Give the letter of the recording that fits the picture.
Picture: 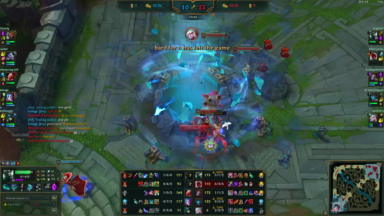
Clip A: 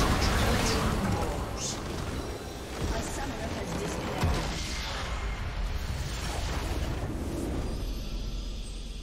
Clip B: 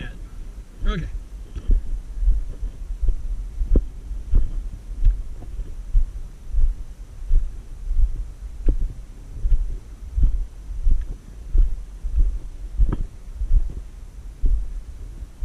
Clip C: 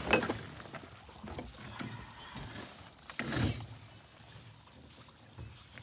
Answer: A